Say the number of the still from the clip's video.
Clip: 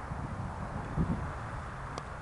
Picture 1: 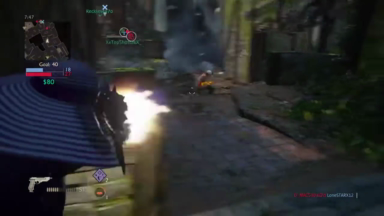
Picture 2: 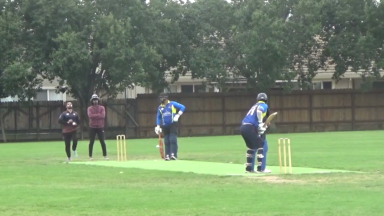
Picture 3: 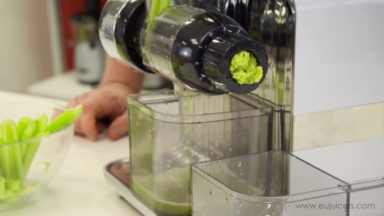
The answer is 2